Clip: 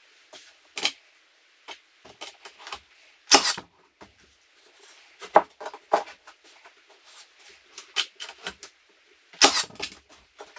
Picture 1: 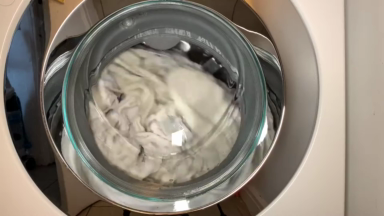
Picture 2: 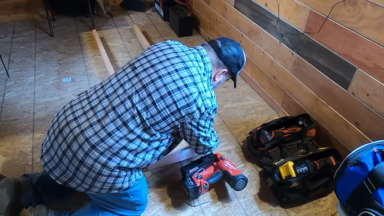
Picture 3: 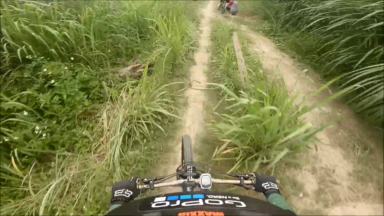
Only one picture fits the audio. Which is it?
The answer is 2